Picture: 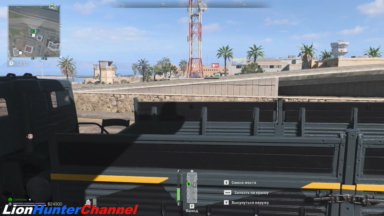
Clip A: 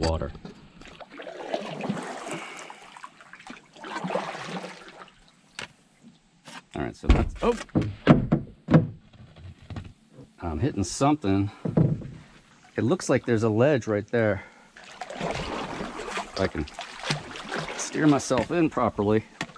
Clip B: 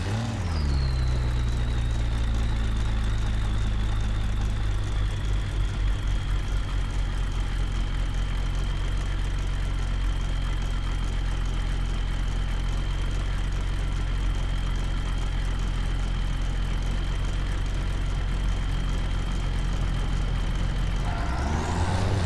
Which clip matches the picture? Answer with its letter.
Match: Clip B